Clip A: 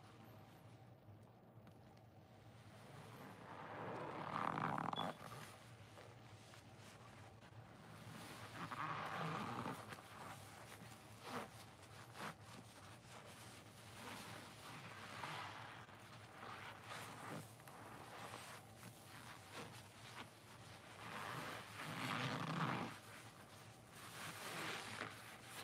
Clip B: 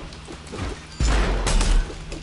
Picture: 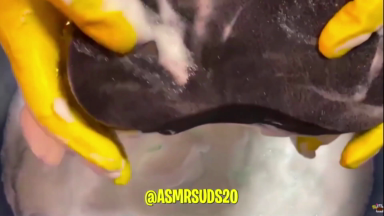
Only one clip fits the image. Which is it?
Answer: A